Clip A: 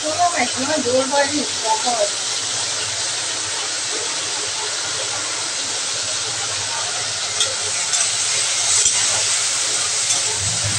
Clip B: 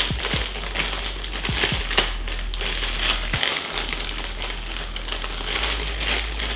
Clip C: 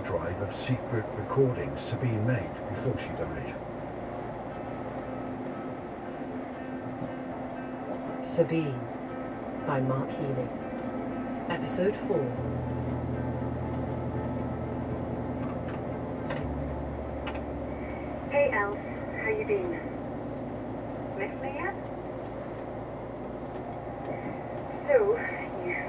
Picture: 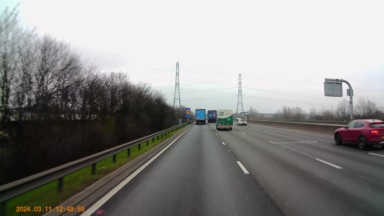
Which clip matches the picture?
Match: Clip C